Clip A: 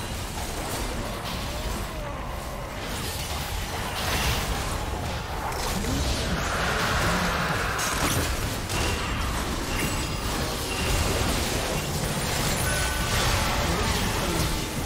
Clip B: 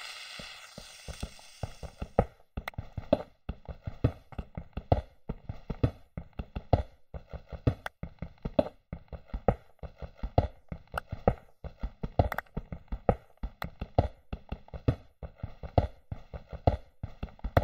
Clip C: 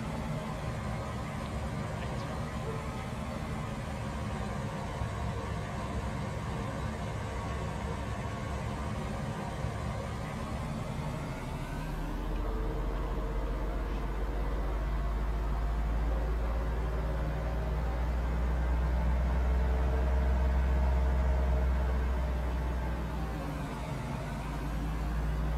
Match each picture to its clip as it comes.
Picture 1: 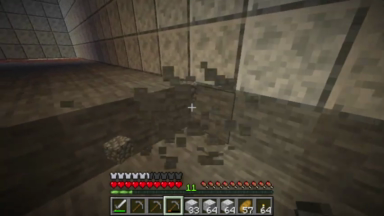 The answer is B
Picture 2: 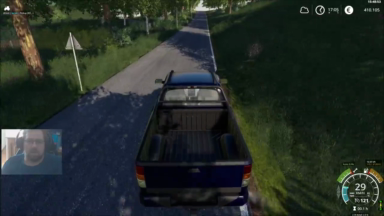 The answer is C